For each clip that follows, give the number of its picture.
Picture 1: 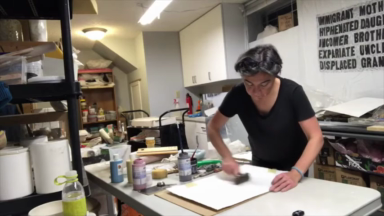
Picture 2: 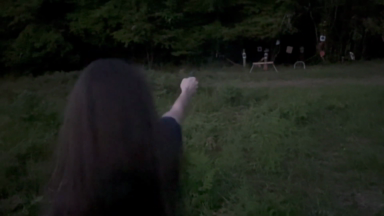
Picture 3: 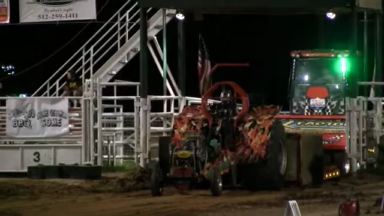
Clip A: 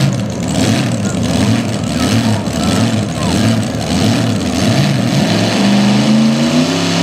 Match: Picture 3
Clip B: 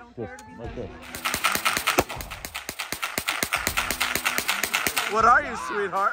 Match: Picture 2